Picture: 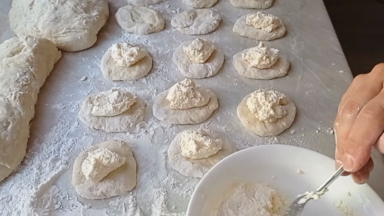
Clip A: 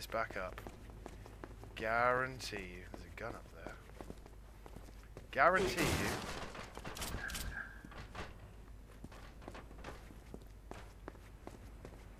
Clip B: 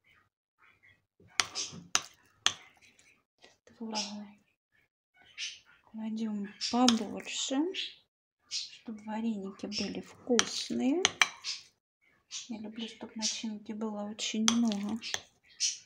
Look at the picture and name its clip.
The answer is B